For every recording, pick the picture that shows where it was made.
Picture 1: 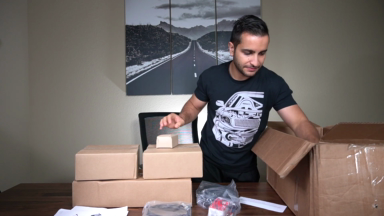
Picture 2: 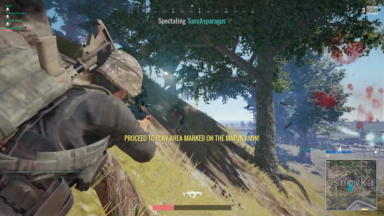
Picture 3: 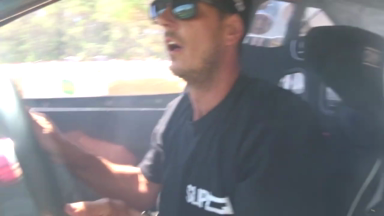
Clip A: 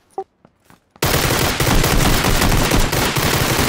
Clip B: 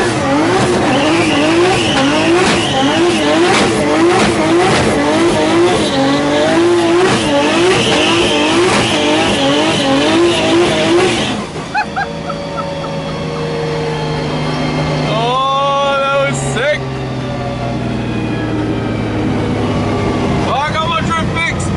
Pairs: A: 2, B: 3